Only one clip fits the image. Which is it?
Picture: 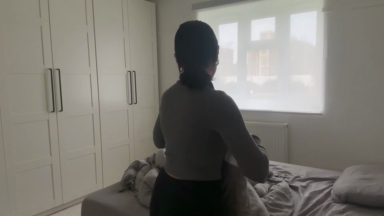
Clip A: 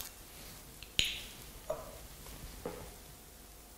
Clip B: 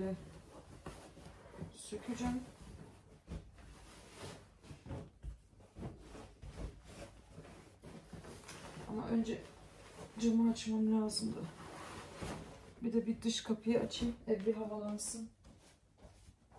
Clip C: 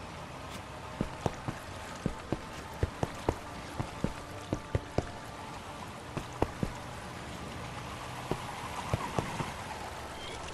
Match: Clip B